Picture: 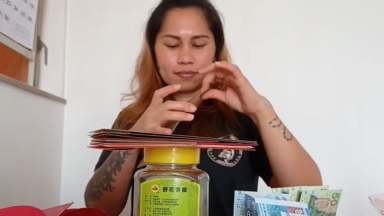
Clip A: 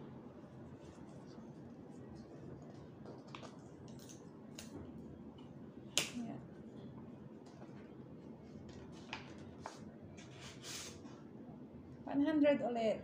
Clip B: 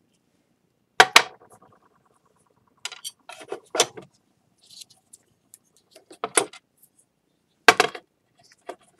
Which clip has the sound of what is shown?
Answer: A